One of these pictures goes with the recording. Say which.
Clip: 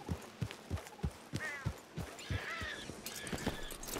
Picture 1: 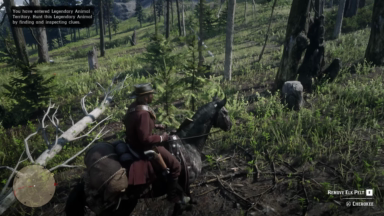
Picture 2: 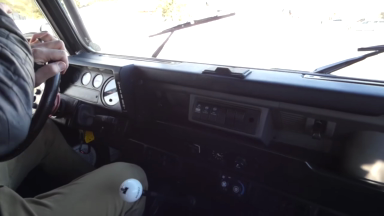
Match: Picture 1